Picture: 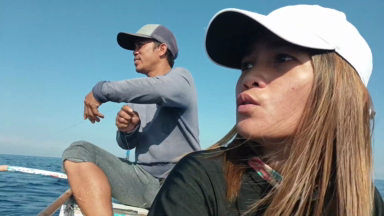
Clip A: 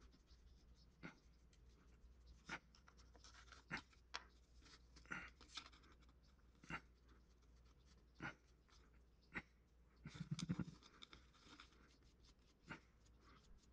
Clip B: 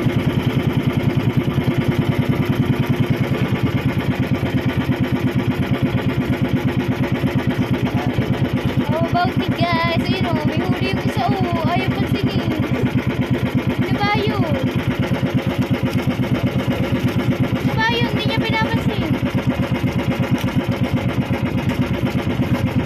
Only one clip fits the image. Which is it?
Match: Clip B